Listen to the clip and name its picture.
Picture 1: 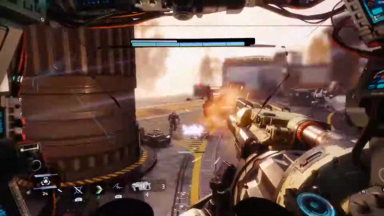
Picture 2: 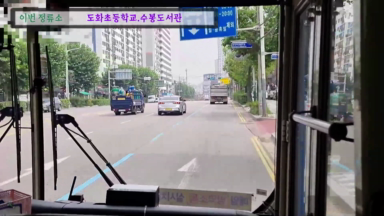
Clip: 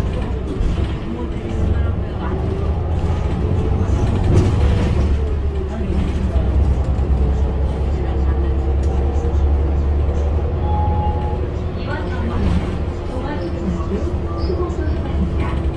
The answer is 2